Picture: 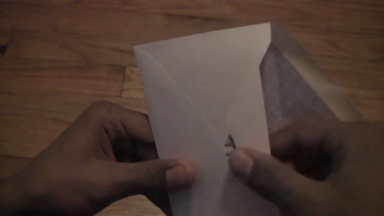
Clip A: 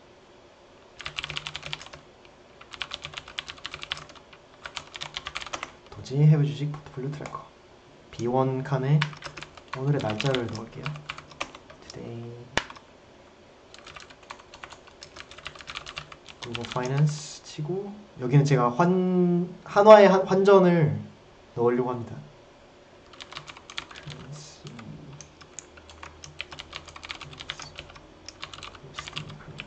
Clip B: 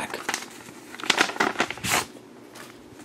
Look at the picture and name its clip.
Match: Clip B